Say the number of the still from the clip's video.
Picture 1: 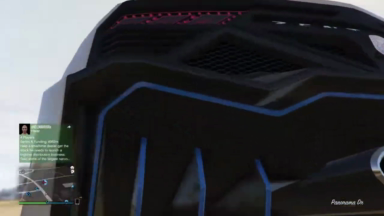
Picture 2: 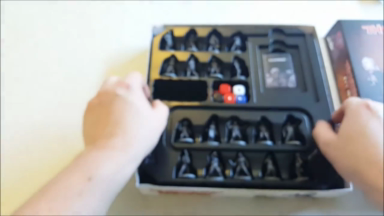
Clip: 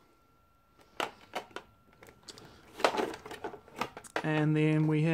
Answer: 2